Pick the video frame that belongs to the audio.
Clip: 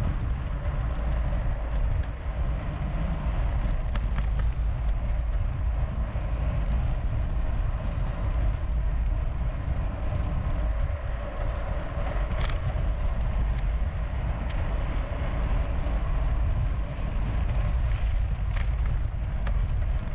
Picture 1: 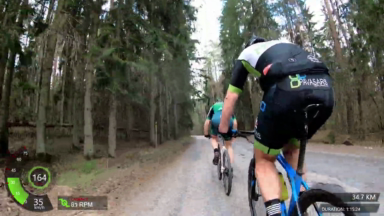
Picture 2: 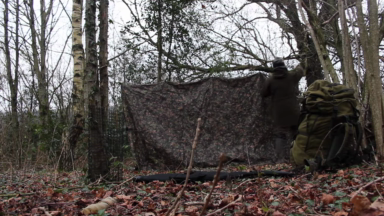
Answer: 1